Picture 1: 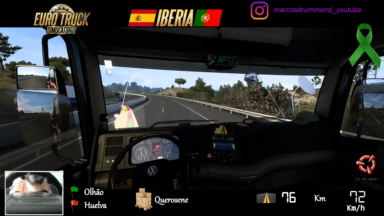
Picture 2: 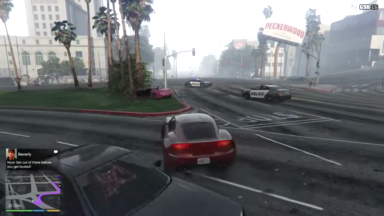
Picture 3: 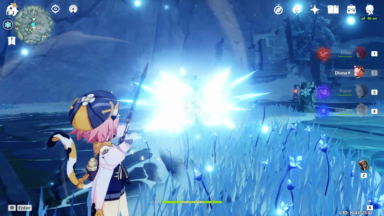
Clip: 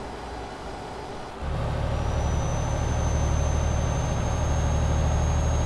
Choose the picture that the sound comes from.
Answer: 1